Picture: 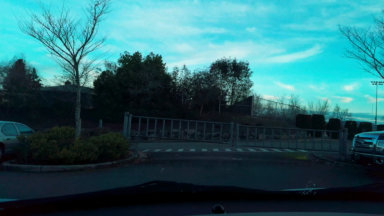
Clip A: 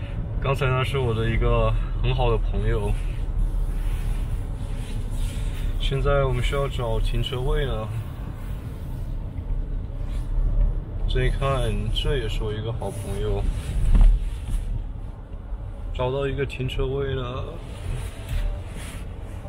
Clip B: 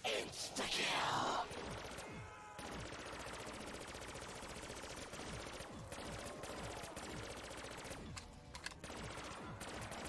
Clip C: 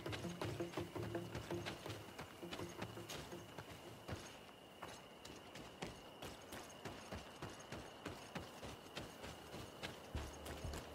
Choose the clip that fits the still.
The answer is A